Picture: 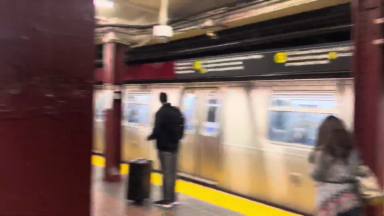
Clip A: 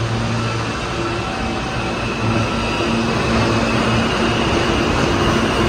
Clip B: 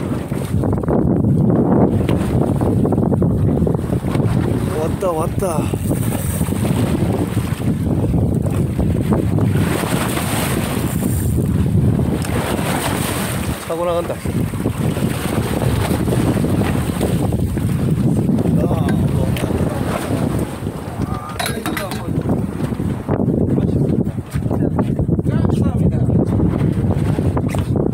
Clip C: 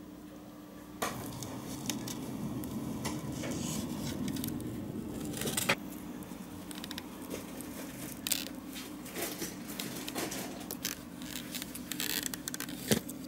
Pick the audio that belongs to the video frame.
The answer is A